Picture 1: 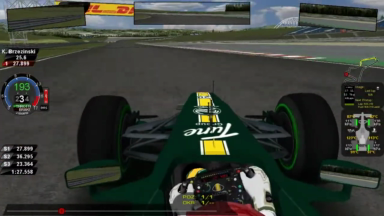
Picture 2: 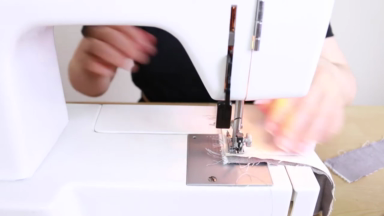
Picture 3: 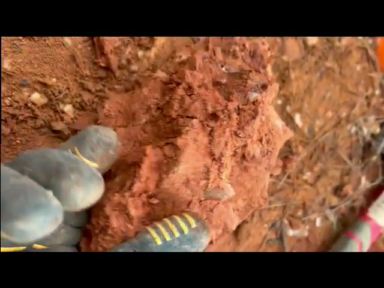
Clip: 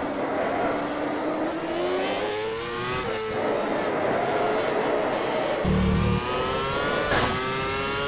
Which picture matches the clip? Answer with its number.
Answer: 1